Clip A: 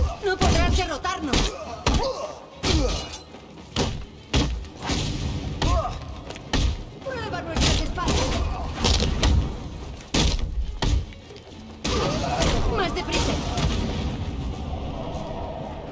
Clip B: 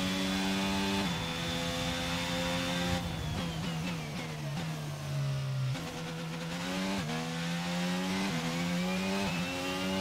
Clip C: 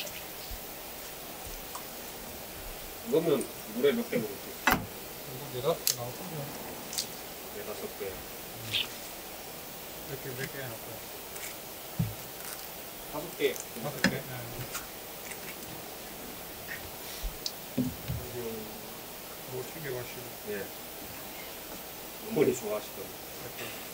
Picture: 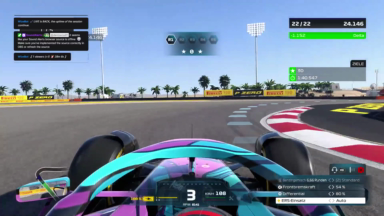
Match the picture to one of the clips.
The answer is B